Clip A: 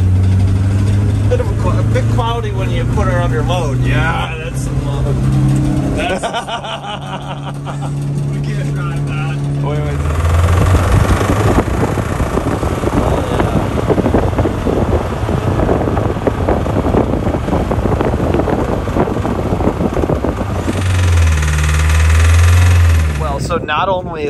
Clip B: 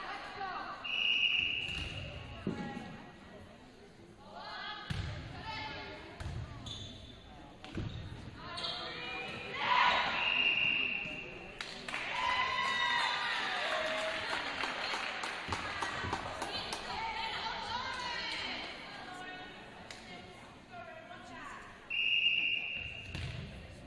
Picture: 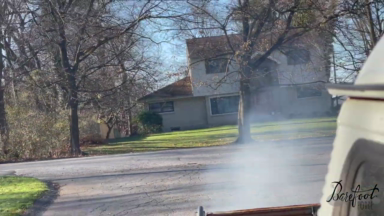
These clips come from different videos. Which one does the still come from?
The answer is A